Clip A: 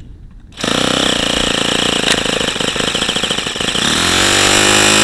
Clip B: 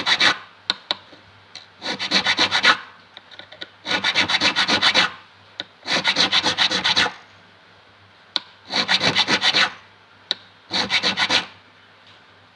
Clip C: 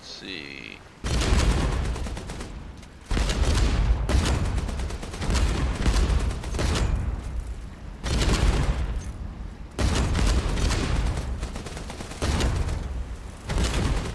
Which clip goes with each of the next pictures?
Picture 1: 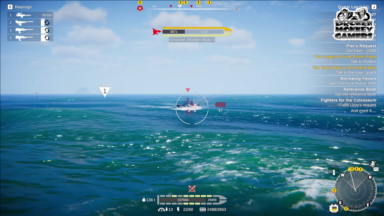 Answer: C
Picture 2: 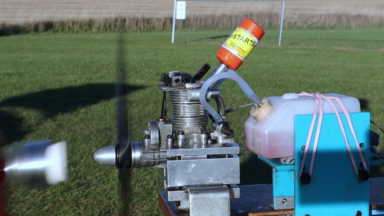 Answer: A